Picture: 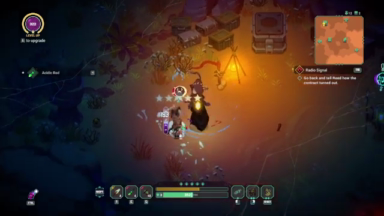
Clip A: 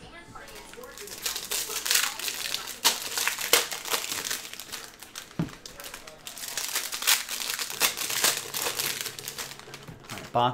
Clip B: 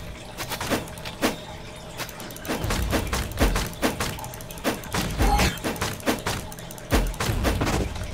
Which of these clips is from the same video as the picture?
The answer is B